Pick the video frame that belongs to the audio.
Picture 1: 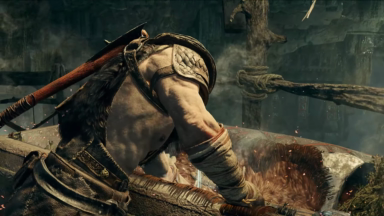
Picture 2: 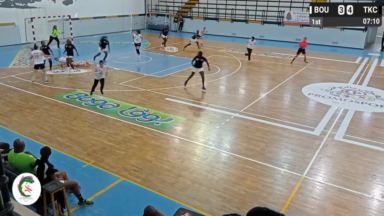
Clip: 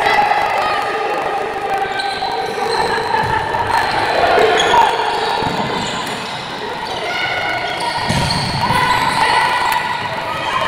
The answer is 2